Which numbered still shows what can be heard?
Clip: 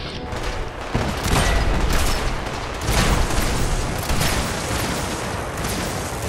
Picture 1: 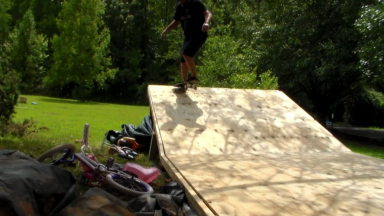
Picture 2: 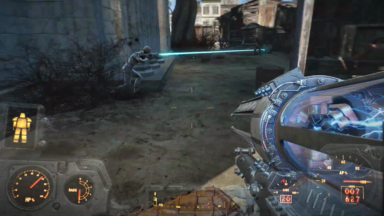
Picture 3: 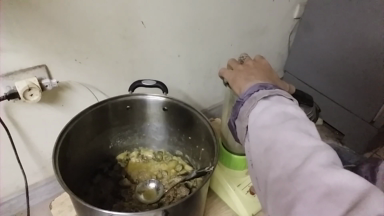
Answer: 2